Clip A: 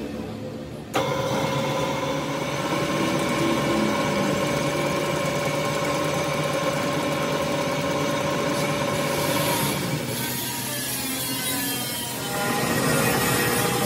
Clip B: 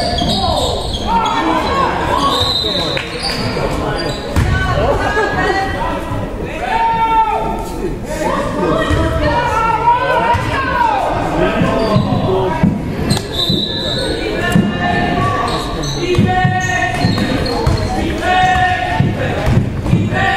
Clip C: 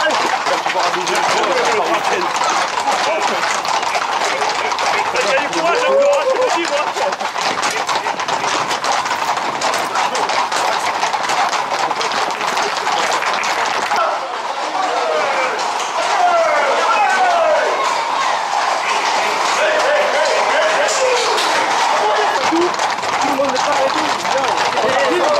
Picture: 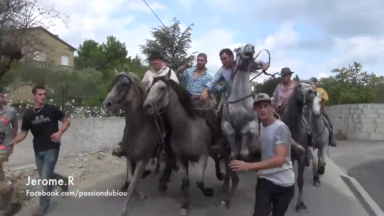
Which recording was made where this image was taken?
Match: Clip C